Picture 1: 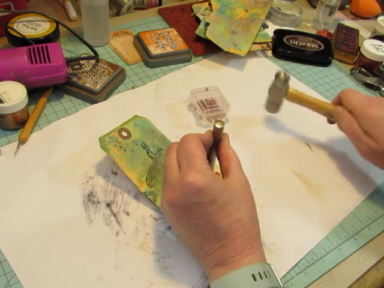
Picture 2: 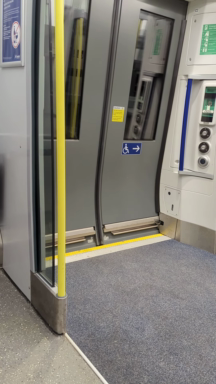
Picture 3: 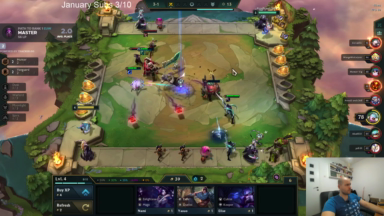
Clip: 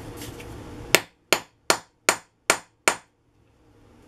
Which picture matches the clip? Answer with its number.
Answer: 1